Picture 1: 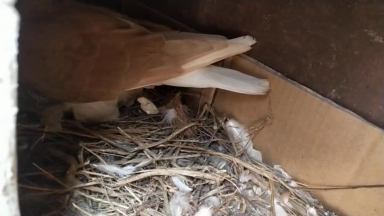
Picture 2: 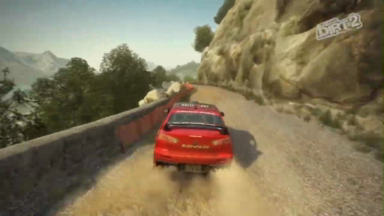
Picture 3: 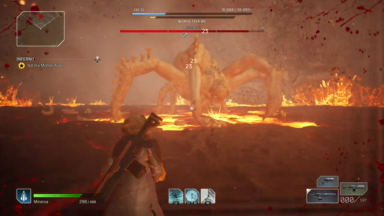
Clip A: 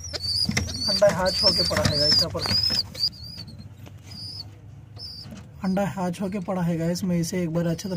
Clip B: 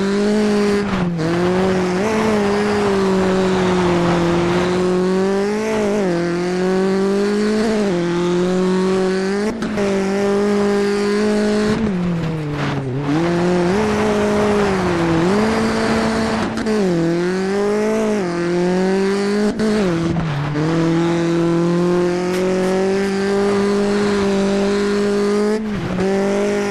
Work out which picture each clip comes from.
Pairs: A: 1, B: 2